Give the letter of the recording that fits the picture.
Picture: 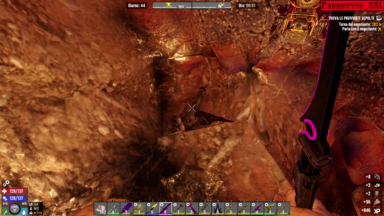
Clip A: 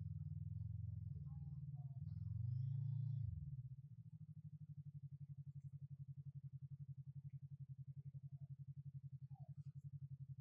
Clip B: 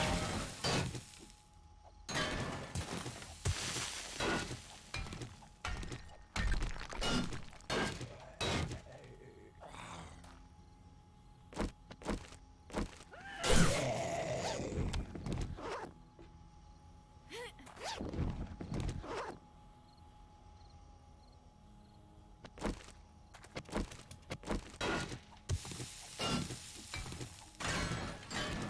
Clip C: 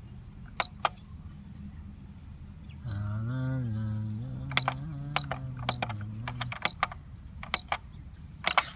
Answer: B